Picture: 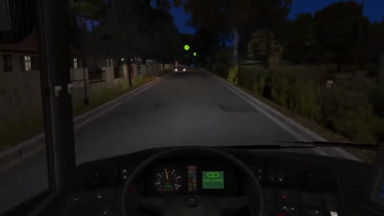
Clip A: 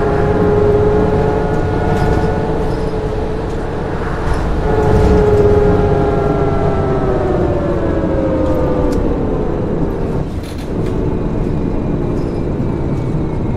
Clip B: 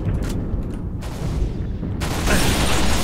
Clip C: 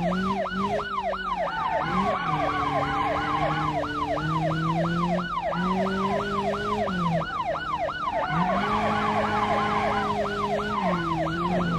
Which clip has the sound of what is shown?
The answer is A